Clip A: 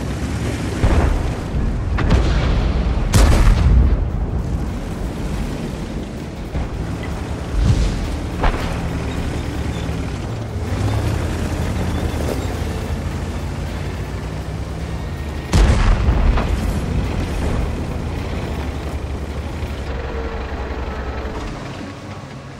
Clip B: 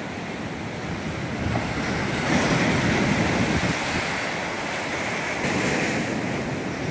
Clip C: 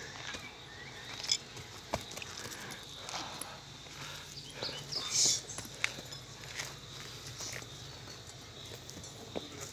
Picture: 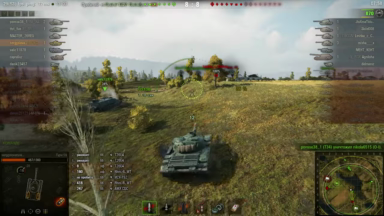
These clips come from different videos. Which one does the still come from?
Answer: A